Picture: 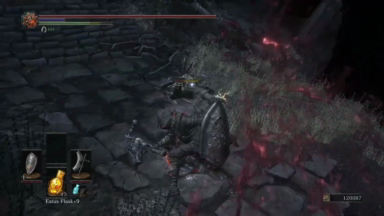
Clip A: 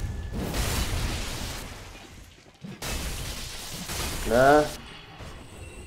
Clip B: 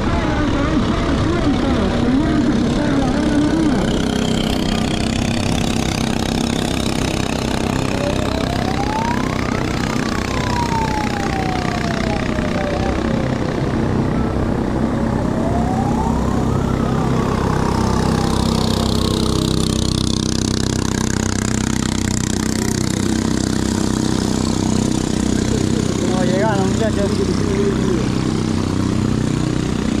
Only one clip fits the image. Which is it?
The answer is A